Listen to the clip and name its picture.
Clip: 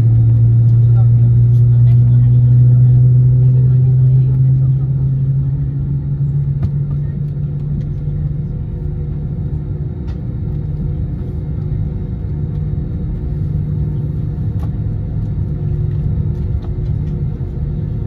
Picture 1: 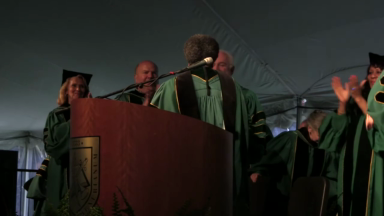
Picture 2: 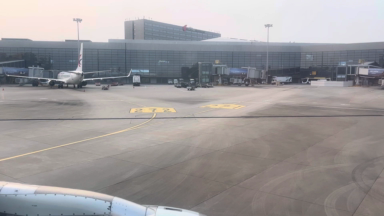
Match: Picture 2